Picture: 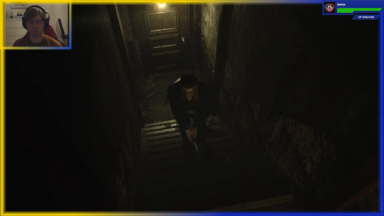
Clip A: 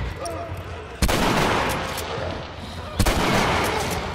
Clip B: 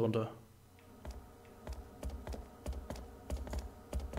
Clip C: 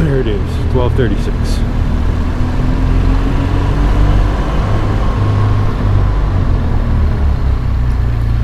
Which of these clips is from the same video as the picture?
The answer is B